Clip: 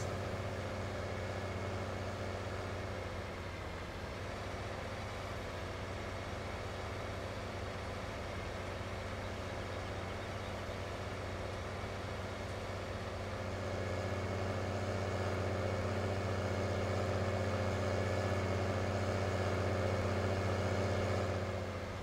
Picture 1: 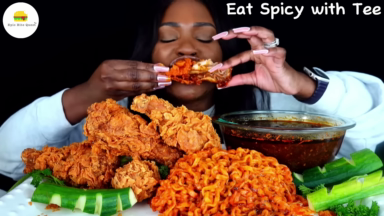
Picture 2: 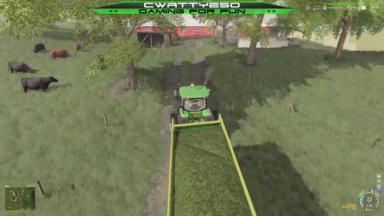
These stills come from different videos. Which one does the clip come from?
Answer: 2